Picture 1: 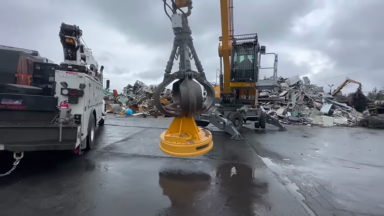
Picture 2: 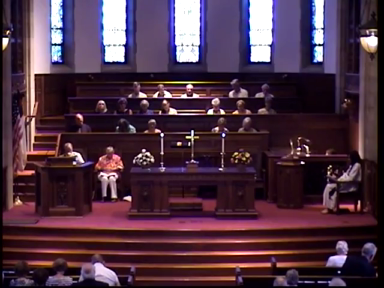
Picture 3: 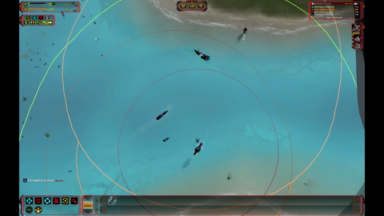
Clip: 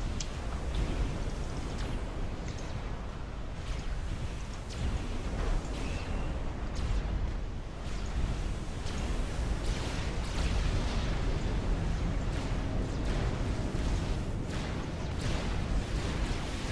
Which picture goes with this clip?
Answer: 3